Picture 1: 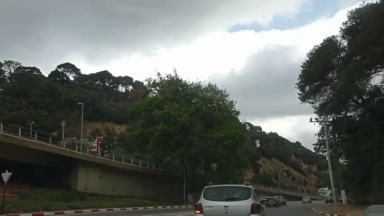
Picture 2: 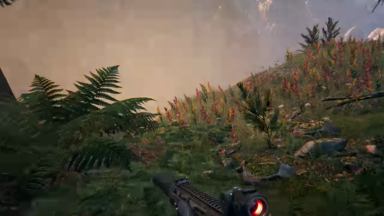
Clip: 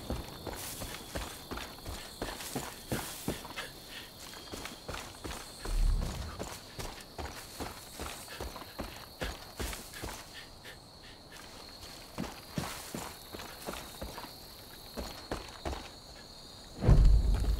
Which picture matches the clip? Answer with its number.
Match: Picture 2